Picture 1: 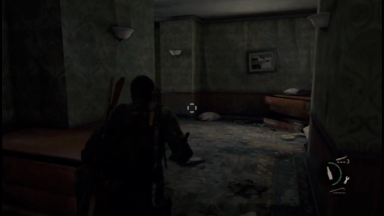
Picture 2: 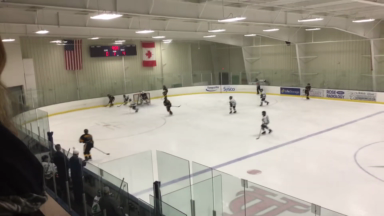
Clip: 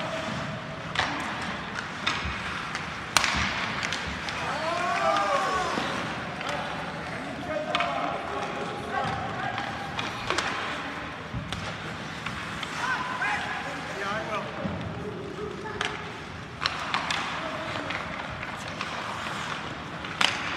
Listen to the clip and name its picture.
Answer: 2